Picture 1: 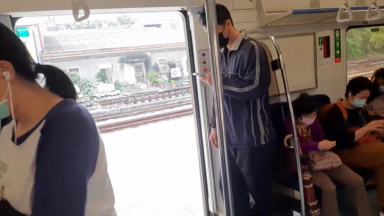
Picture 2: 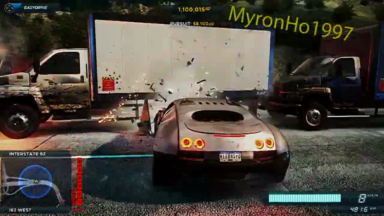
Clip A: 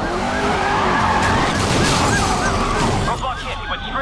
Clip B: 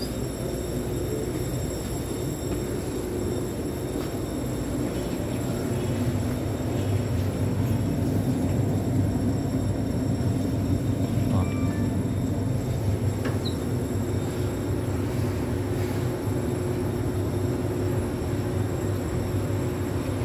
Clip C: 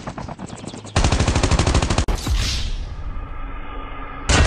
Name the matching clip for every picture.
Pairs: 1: B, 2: A